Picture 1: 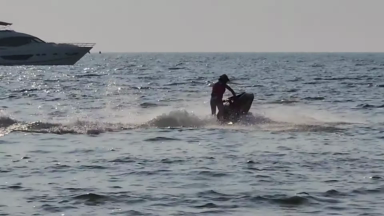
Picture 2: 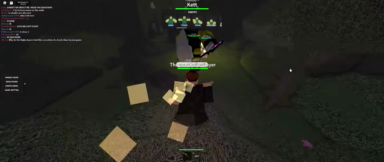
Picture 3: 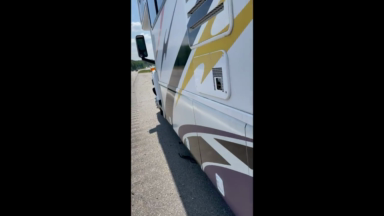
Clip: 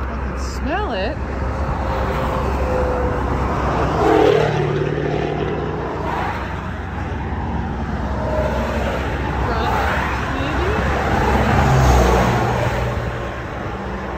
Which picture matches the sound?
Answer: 3